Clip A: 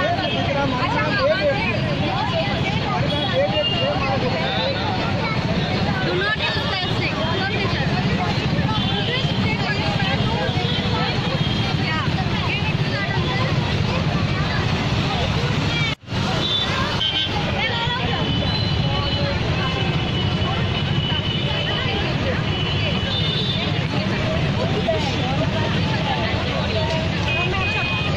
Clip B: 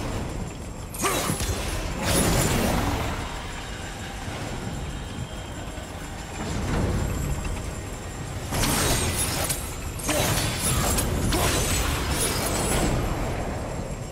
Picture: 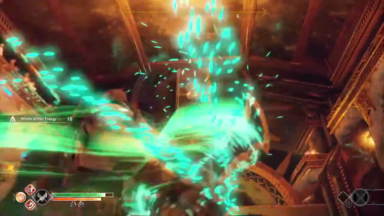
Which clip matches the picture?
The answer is B